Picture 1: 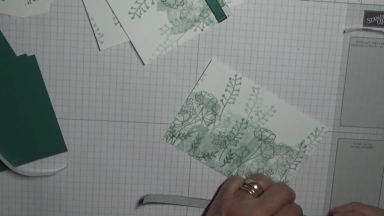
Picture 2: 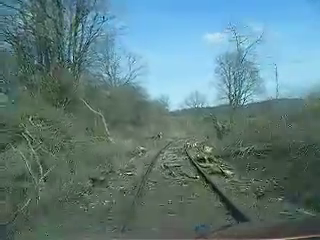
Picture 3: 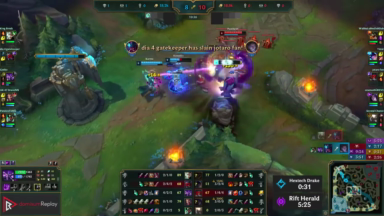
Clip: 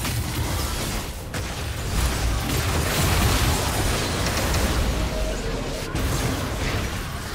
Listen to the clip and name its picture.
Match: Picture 3